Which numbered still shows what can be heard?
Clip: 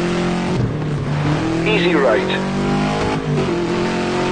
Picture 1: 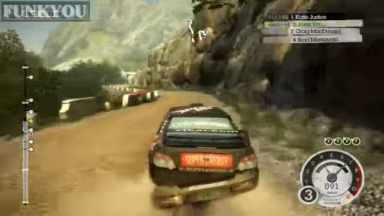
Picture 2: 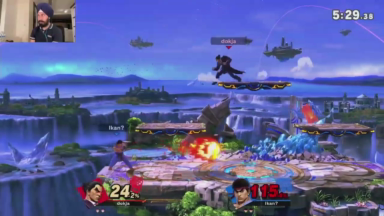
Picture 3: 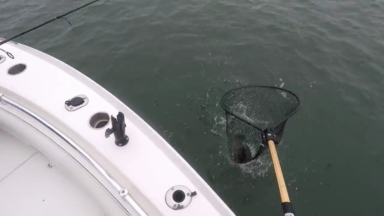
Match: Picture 1